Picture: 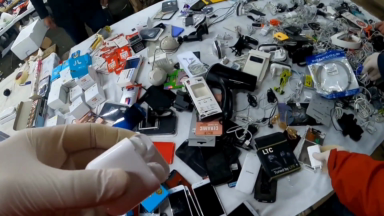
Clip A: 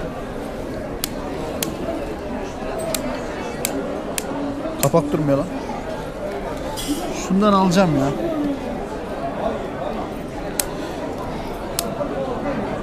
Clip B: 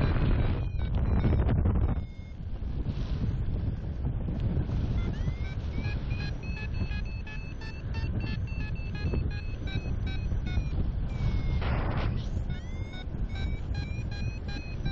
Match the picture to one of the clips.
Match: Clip A